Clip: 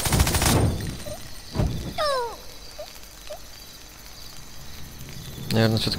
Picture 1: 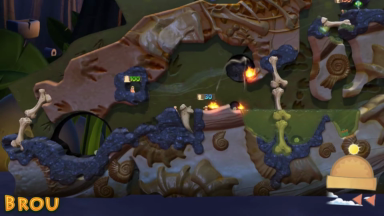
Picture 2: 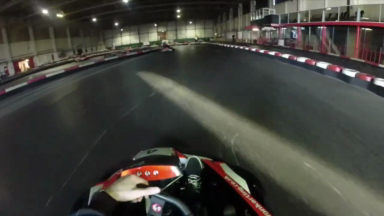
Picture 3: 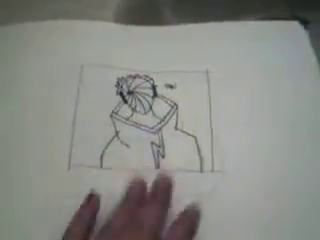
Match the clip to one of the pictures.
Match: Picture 1